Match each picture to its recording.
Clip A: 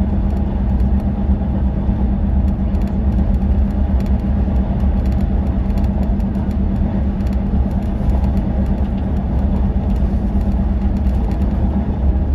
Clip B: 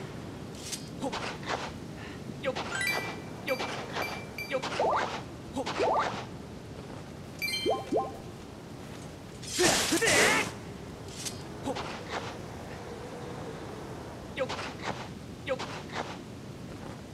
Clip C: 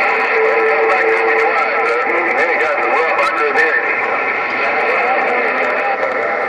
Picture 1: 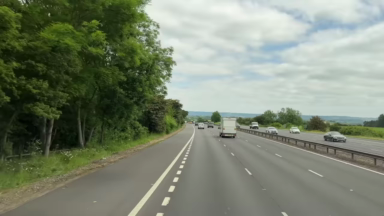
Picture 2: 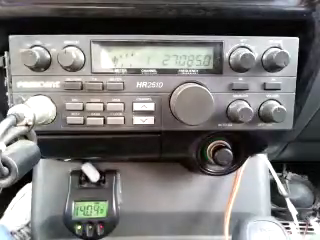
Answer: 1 A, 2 C